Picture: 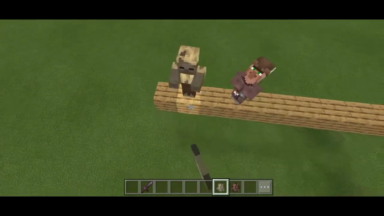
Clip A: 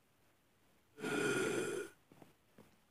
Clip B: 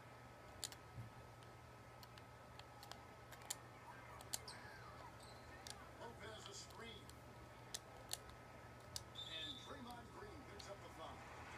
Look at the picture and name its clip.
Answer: A